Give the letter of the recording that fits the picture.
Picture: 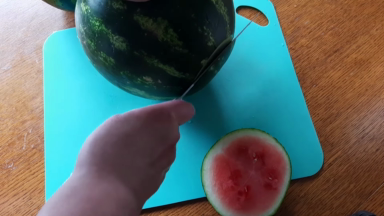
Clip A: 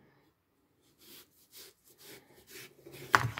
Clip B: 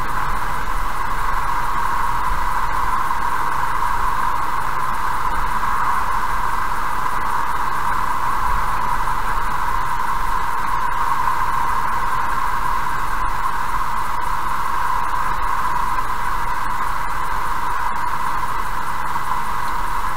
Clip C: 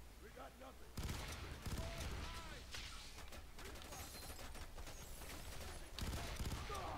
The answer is A